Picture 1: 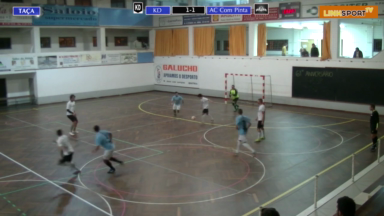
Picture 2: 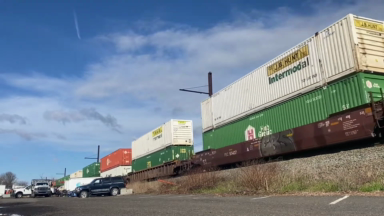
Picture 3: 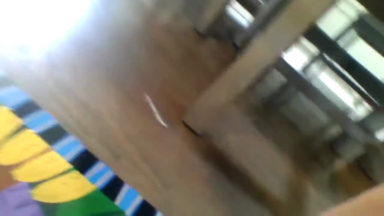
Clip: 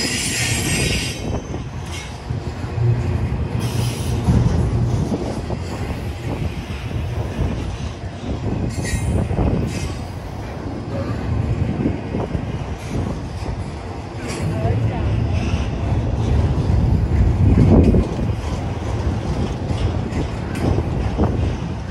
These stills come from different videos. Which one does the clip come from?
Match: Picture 2